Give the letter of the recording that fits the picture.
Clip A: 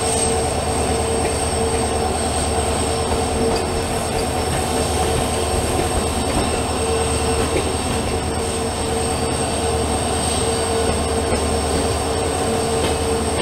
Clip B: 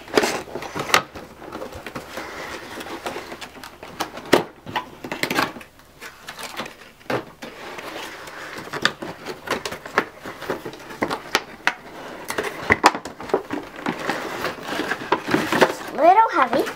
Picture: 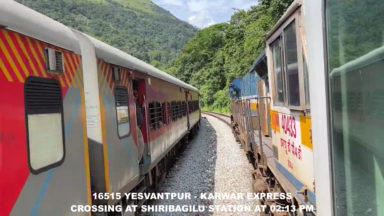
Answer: A